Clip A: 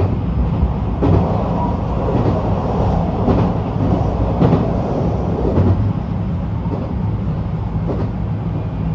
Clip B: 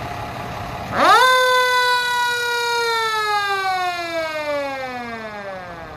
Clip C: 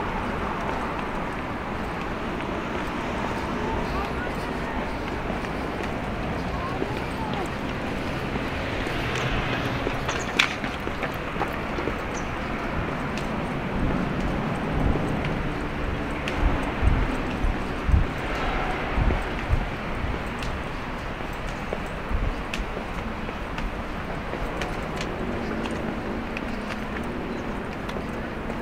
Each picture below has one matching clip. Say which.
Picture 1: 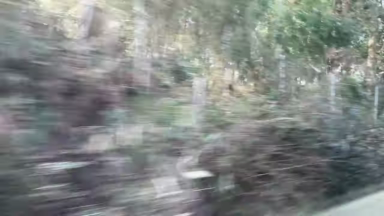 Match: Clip A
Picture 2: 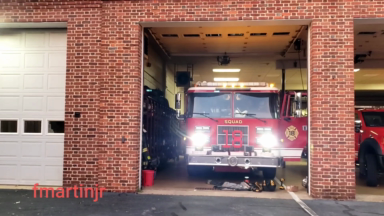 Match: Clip B